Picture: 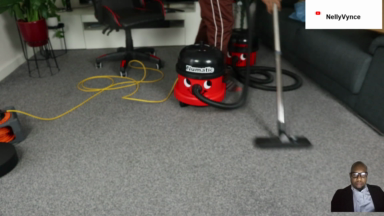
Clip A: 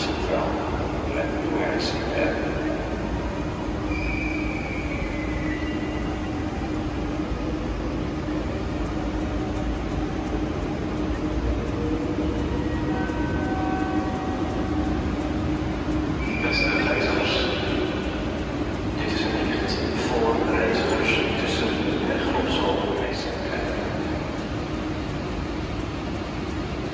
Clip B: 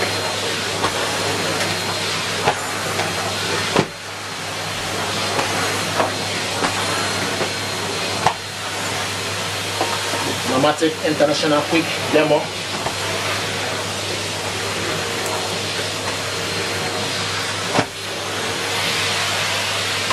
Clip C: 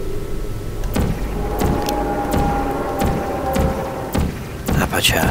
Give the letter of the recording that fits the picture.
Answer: B